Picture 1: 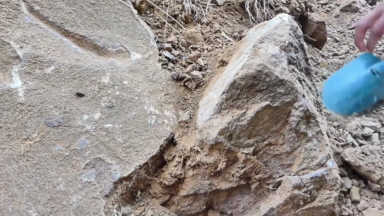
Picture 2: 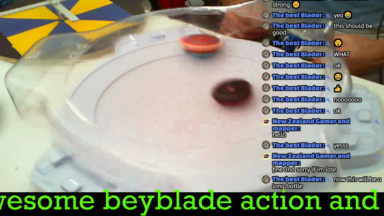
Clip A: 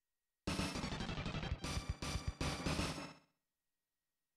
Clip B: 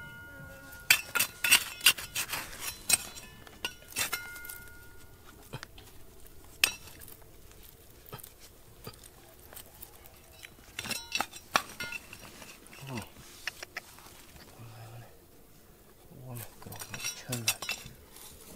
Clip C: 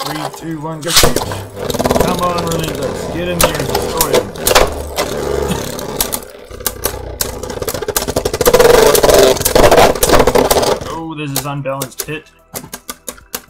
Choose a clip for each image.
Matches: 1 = B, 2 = C